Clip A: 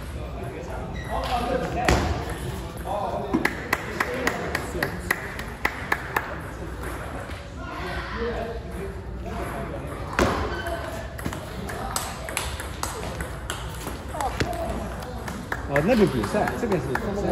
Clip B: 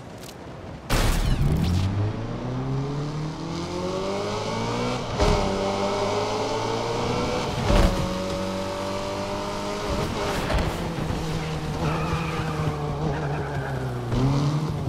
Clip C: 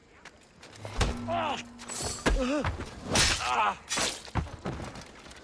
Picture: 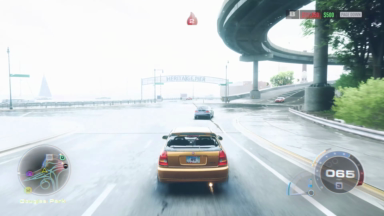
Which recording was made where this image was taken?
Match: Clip B